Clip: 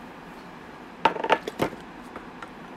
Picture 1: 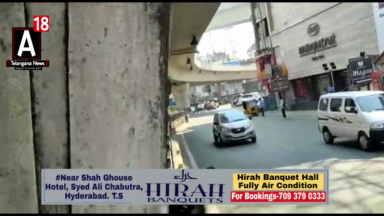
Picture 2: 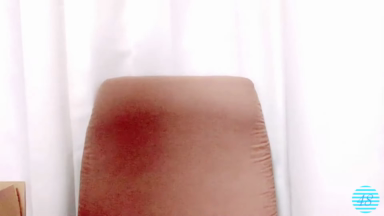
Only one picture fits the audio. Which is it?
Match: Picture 2